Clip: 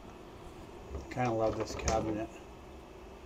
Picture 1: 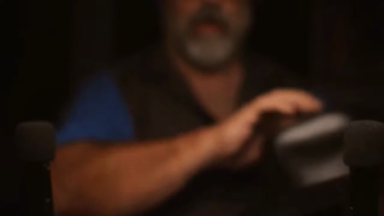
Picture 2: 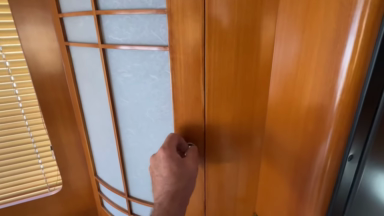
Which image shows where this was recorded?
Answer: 2